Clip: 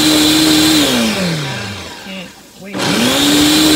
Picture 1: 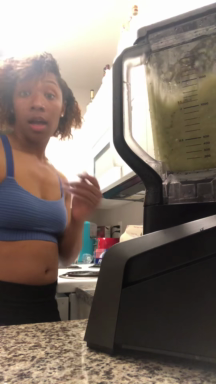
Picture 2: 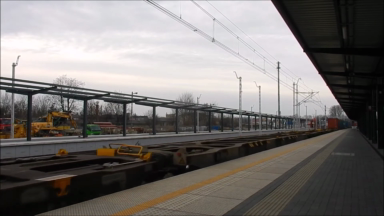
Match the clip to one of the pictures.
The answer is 1